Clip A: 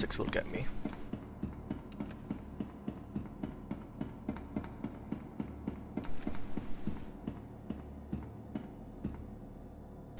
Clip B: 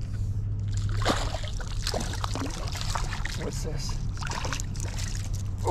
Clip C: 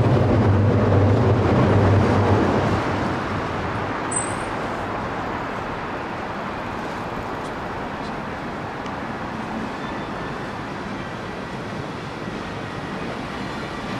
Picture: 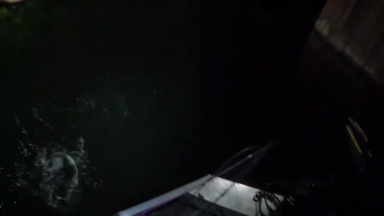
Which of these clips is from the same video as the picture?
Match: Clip B